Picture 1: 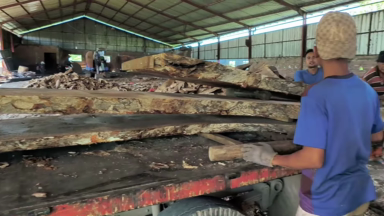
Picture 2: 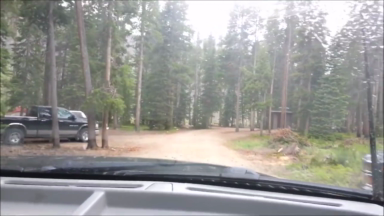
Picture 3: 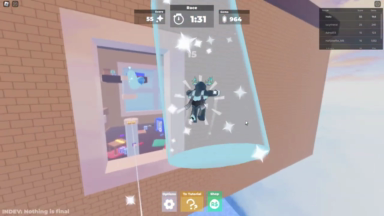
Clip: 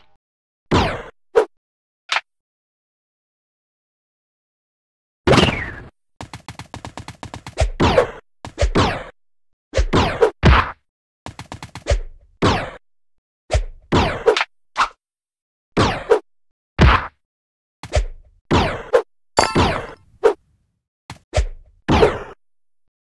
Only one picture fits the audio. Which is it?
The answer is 3